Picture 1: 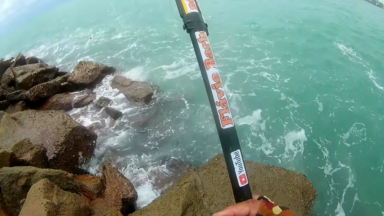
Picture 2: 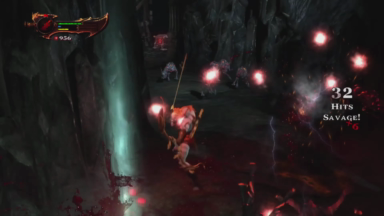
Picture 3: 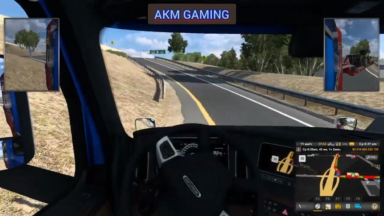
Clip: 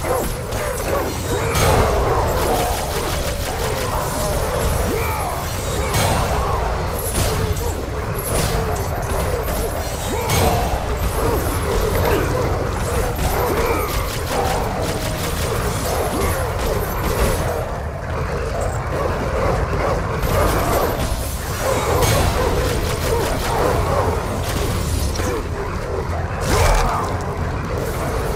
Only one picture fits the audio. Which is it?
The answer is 2